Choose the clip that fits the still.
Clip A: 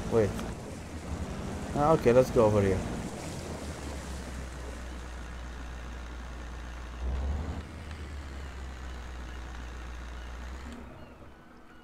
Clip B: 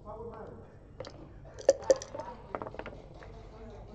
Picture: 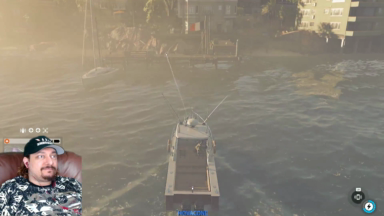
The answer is A